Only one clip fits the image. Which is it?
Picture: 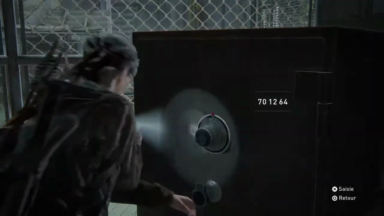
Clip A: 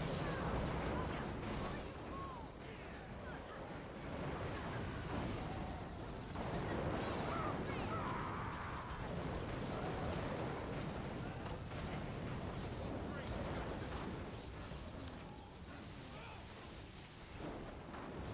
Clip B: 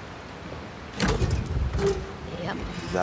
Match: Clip B